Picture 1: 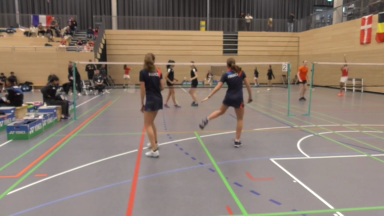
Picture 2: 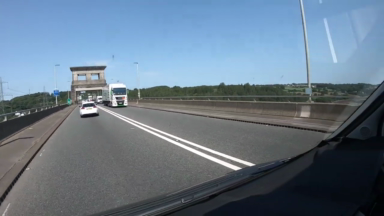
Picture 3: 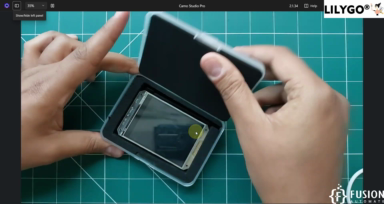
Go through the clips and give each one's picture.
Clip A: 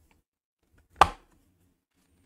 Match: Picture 3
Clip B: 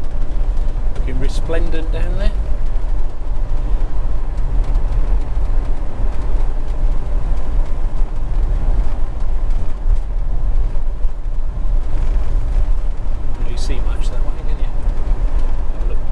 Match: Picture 2